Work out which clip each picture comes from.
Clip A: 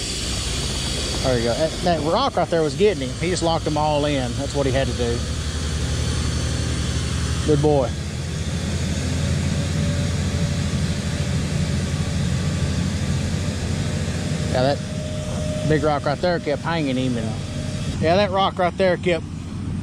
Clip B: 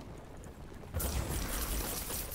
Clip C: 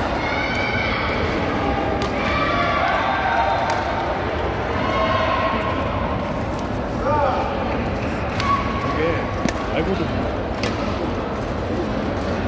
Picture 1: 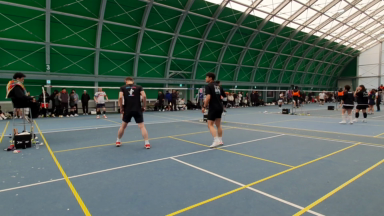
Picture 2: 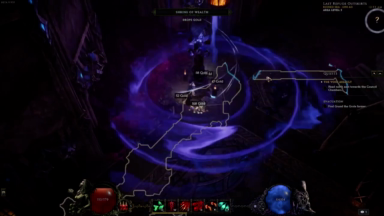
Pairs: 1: C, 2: B